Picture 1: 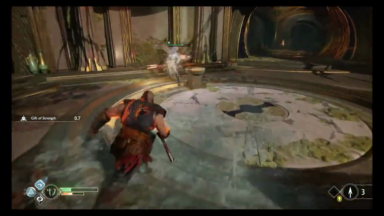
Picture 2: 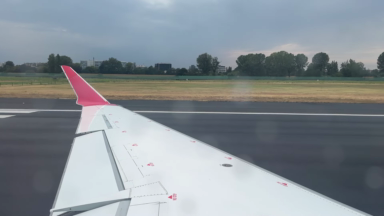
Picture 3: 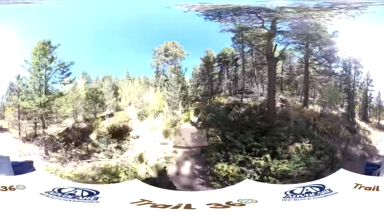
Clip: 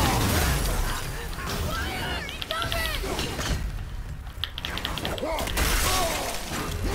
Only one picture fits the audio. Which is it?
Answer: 1